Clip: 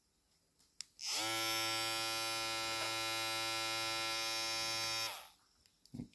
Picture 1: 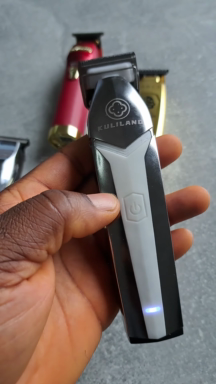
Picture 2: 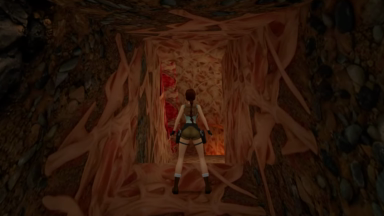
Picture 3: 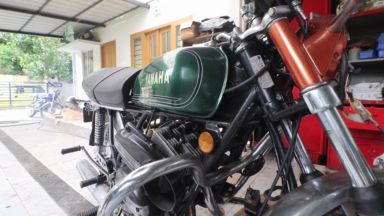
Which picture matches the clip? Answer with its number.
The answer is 1